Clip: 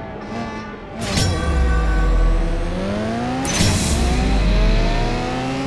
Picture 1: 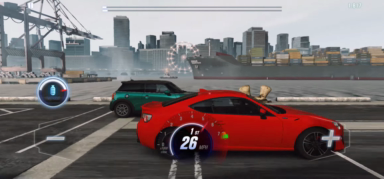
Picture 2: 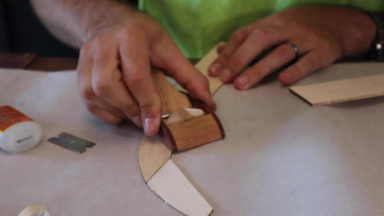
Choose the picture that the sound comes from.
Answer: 1